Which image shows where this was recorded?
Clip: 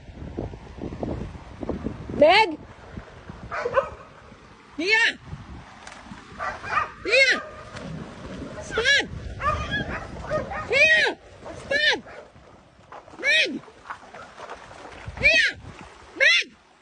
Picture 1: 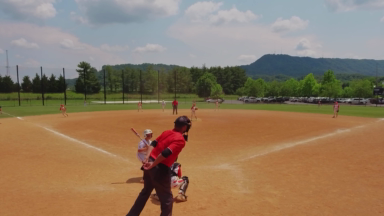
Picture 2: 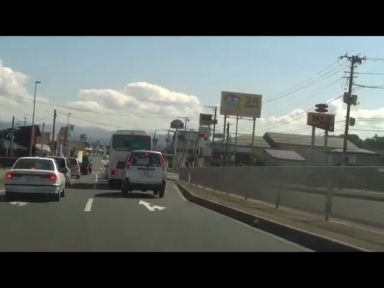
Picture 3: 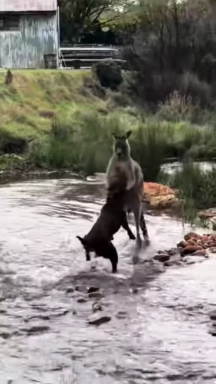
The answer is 3